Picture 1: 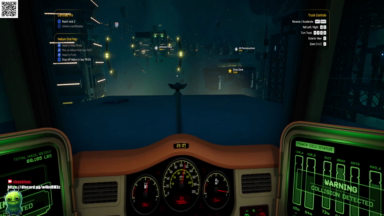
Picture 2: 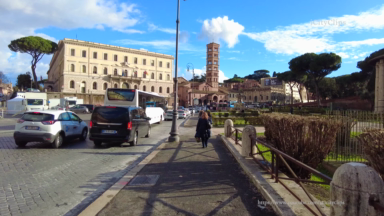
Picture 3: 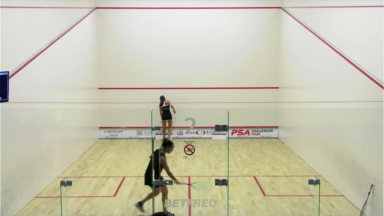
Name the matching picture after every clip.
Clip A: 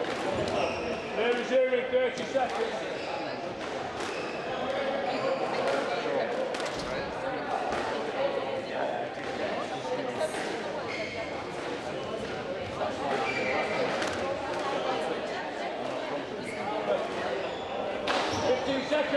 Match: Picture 3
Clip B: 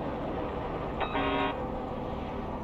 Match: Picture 1